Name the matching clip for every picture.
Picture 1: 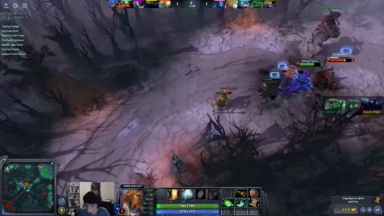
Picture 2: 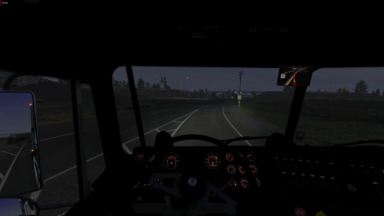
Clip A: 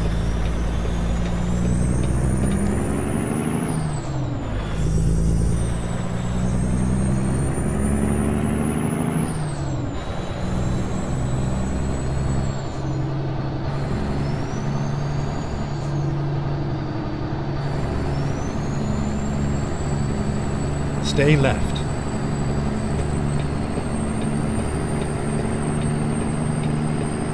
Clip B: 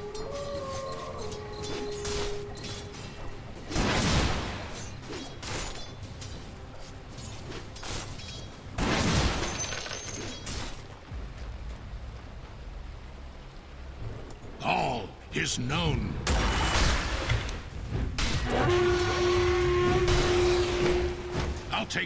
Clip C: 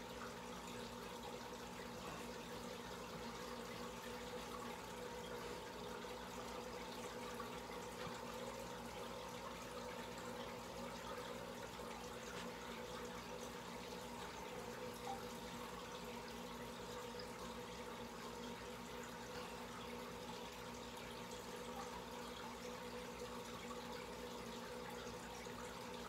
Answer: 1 B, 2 A